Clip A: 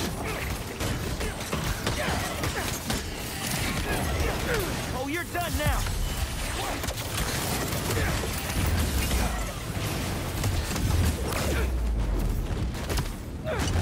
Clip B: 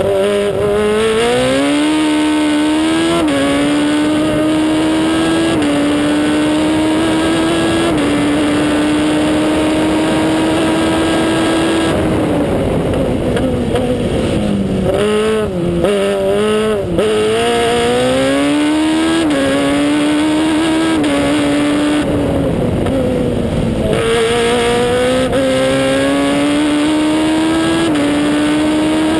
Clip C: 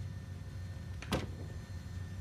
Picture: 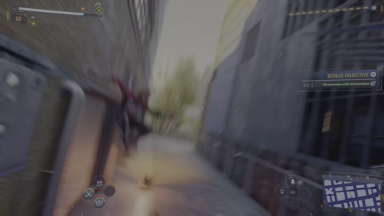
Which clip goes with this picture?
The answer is A